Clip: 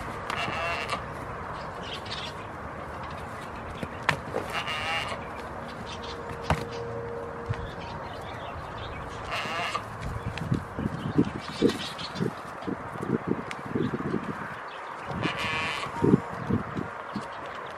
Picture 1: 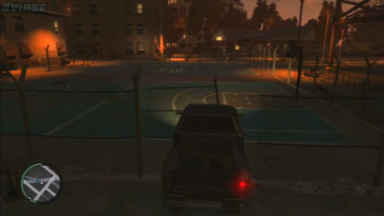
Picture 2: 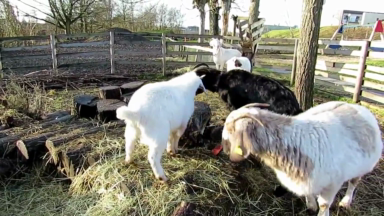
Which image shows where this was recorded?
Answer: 2